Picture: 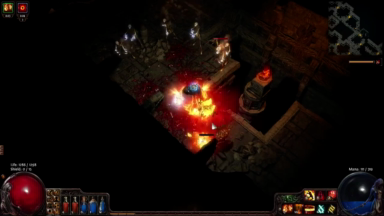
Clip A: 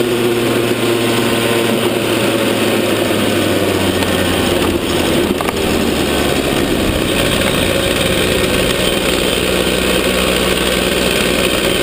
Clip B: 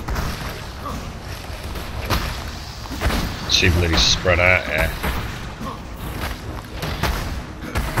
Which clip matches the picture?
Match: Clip B